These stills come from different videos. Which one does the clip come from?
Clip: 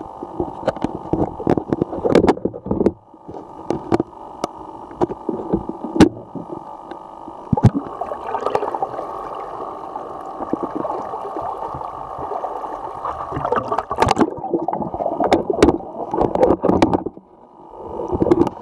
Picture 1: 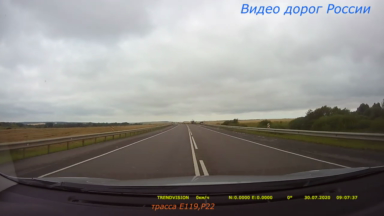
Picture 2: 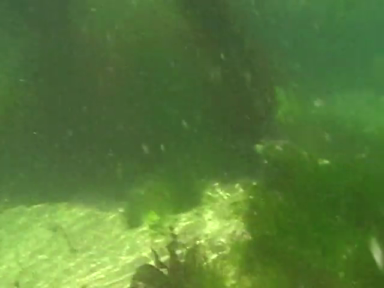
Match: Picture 2